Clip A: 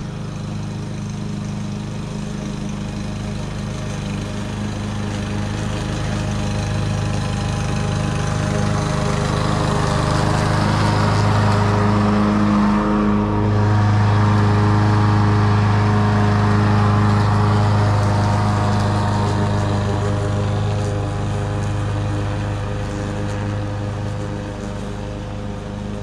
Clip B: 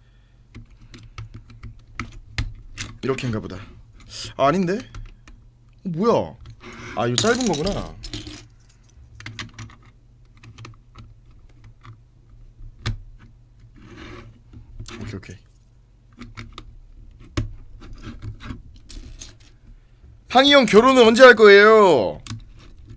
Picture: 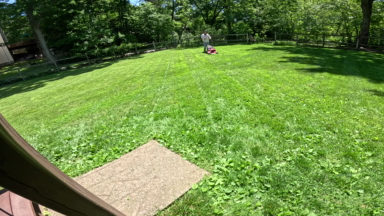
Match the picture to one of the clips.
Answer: A